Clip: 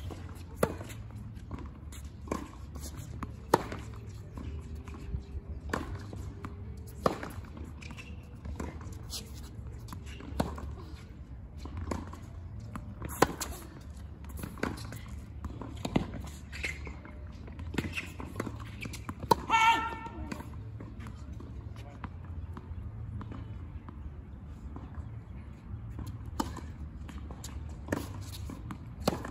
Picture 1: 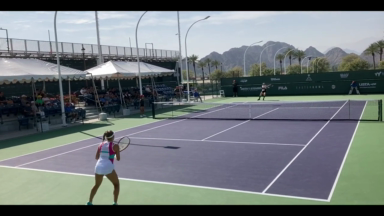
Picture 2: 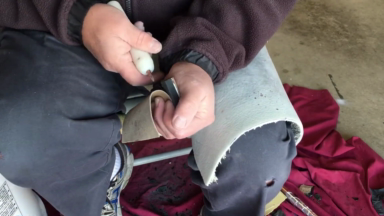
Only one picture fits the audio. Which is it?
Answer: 1